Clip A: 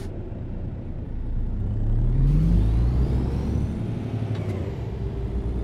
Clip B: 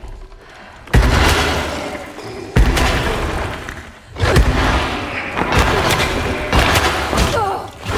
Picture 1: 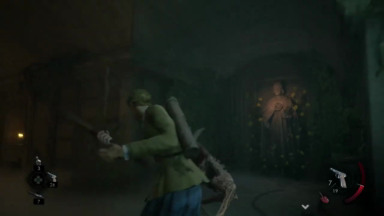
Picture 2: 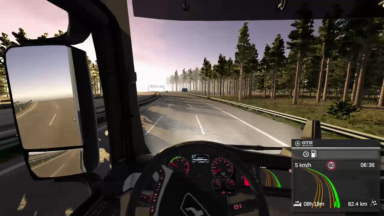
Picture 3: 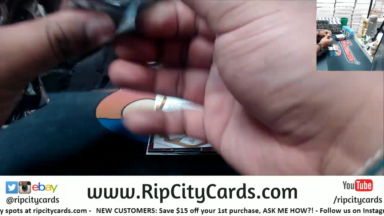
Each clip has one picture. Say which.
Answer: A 2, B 1